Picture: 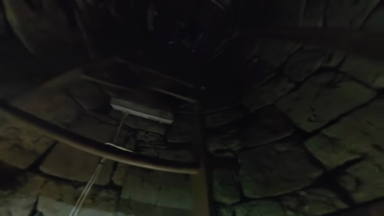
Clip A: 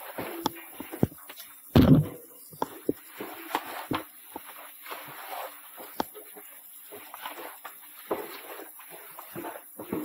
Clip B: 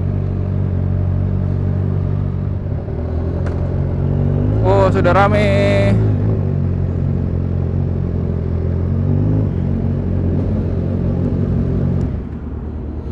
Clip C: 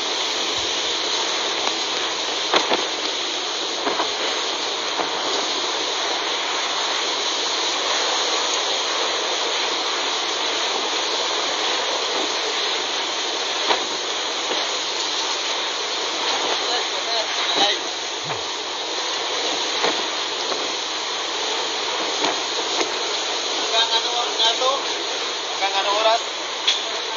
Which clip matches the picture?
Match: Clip A